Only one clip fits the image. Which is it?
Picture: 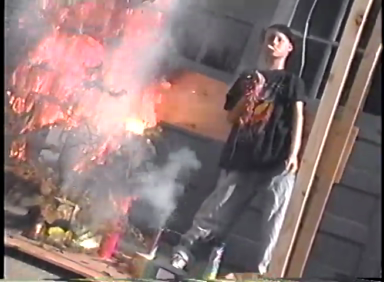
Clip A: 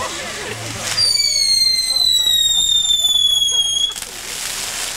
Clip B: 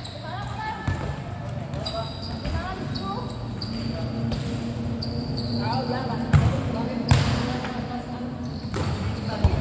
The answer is A